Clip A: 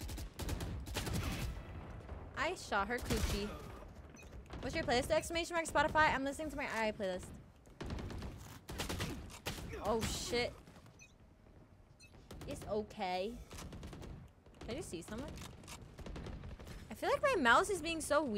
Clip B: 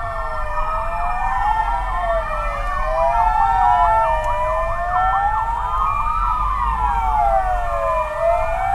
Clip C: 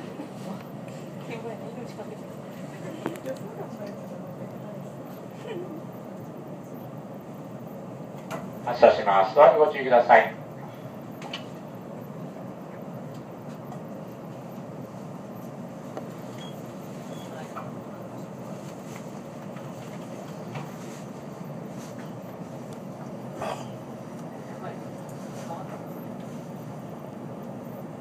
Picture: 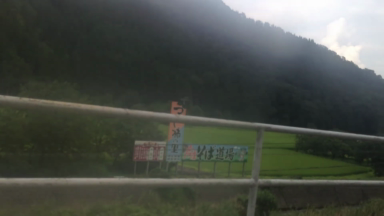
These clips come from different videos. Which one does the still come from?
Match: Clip C